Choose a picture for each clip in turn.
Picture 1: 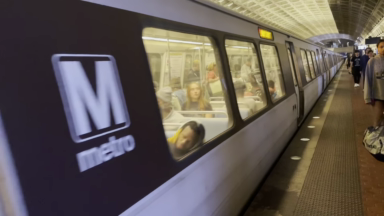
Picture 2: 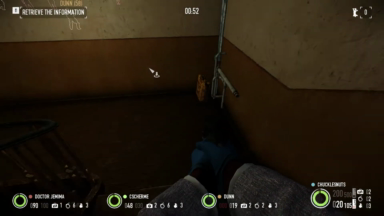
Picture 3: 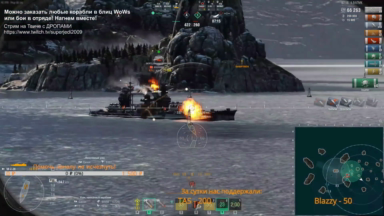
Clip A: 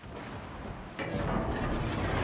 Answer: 3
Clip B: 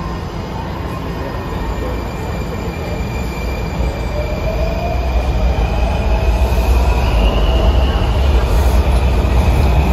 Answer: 1